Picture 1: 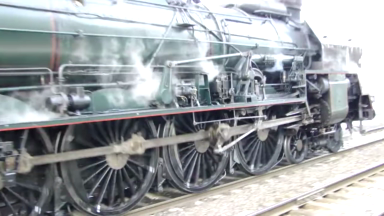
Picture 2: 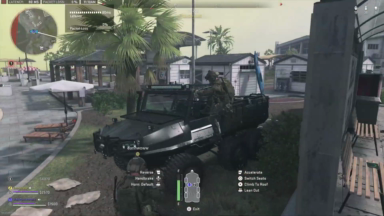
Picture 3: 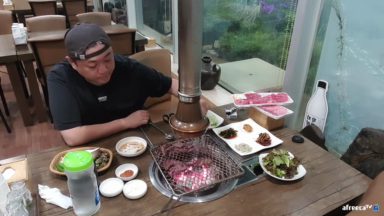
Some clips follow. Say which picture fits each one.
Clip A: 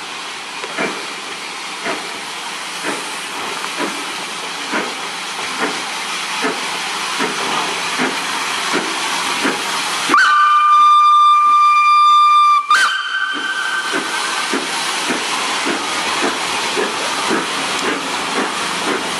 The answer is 1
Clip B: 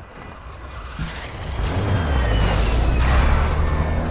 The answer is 2